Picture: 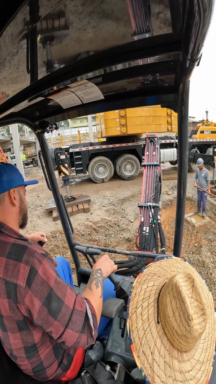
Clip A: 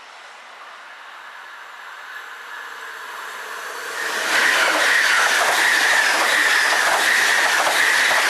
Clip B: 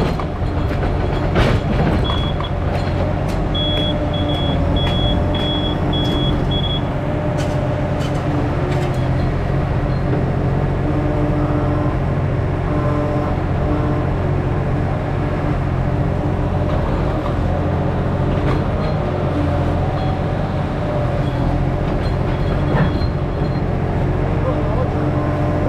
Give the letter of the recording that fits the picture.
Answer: B